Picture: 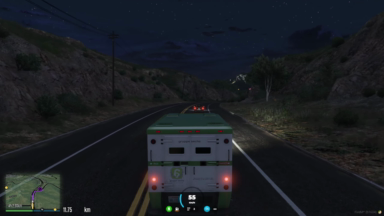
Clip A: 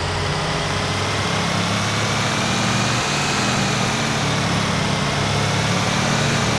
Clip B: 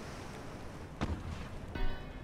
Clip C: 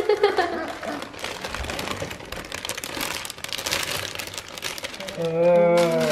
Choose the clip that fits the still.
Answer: A